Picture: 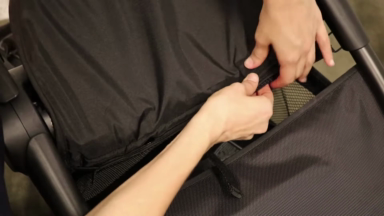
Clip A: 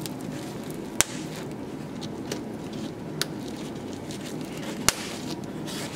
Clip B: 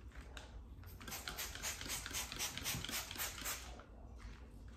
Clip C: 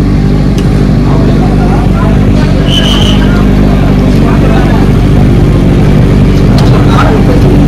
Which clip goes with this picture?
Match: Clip A